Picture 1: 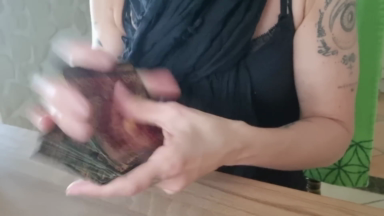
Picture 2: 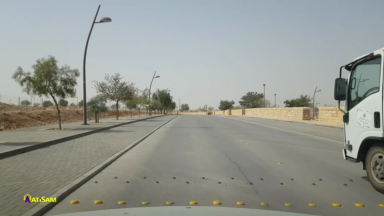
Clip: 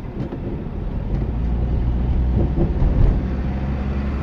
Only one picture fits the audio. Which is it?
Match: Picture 2